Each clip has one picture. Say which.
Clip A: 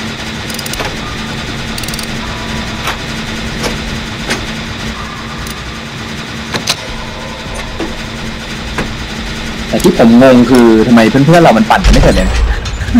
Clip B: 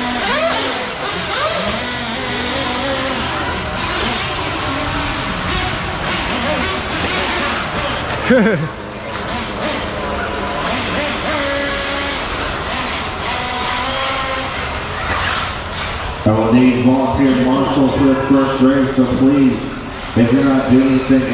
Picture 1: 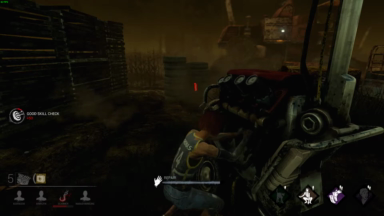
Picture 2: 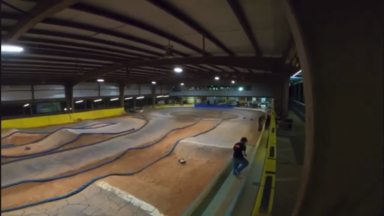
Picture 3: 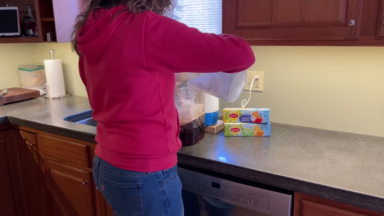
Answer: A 1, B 2